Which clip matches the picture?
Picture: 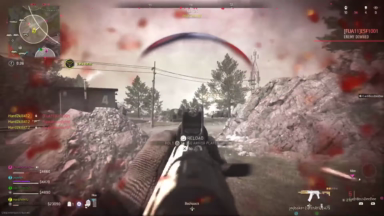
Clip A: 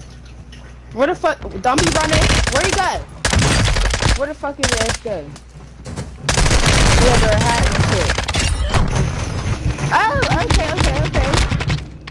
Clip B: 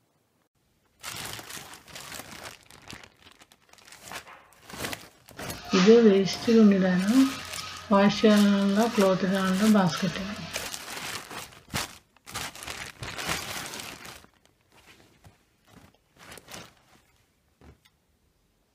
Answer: A